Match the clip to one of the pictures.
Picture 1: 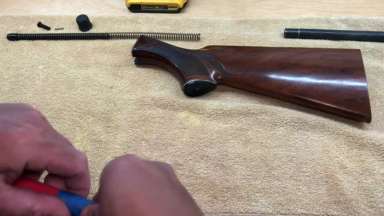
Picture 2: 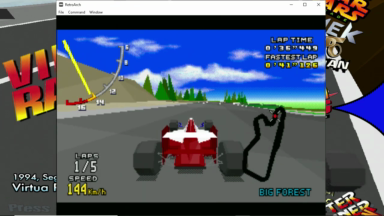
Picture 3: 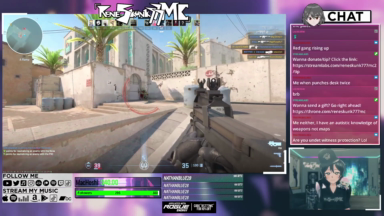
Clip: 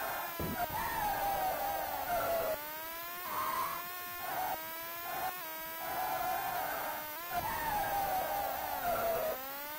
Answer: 2